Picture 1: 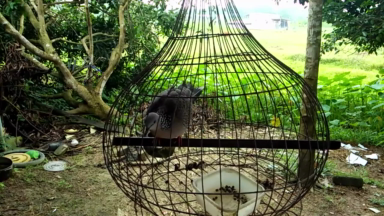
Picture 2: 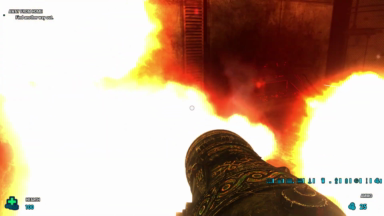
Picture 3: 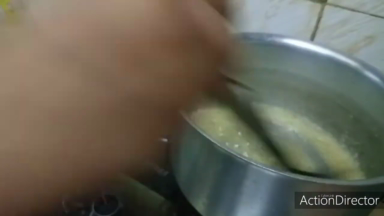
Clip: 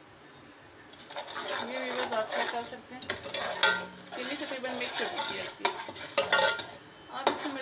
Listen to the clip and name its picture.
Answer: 3